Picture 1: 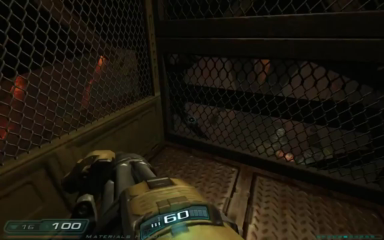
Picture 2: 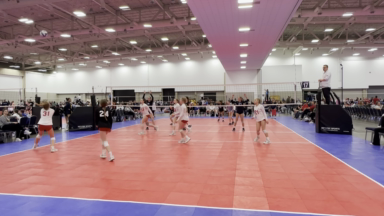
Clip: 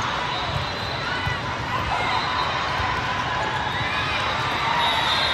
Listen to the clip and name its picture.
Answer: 2